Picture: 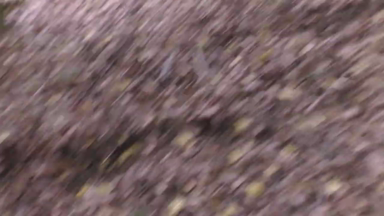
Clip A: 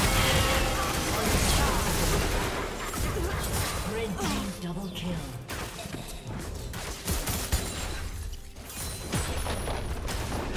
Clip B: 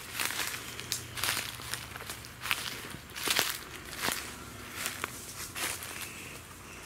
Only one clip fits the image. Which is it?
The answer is B